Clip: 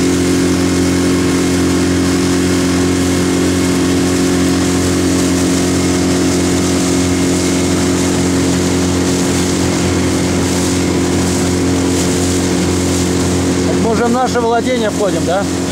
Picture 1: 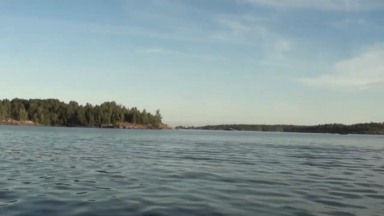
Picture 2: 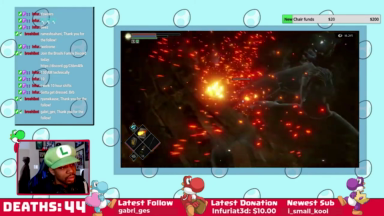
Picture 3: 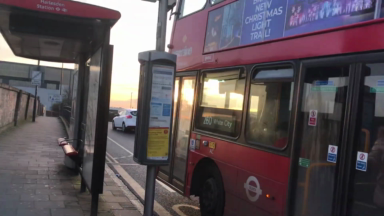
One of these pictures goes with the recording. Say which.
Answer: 1